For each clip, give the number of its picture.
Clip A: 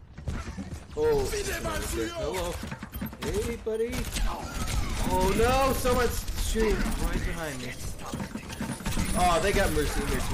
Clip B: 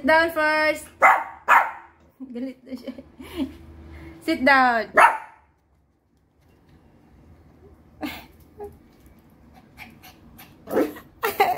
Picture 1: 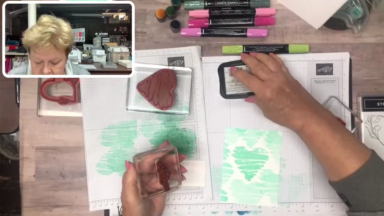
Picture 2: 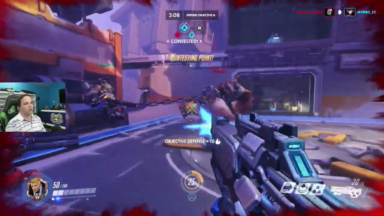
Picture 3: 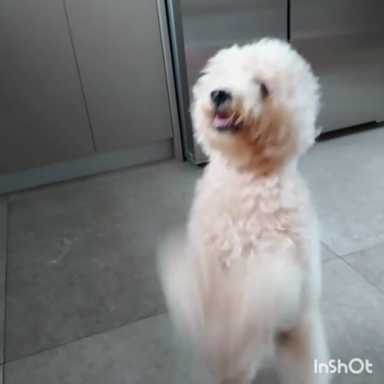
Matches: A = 2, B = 3